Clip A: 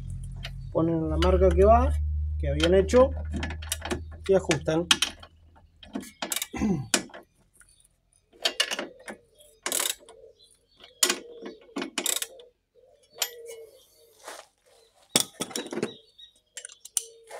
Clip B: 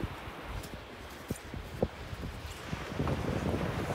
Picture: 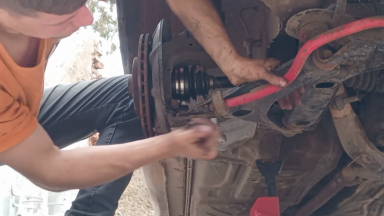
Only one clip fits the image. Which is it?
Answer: A